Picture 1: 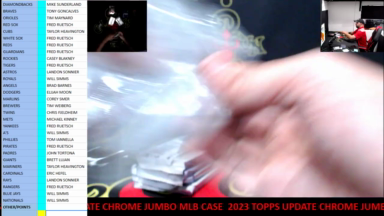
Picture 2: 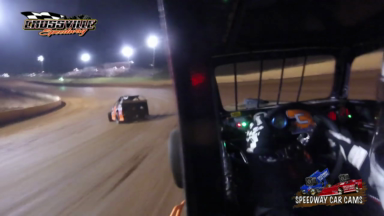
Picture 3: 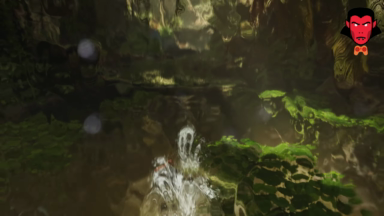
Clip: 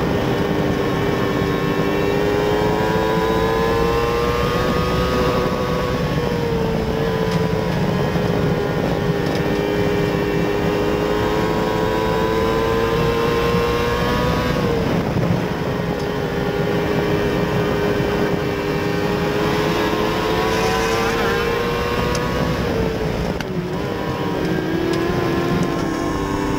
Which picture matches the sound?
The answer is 2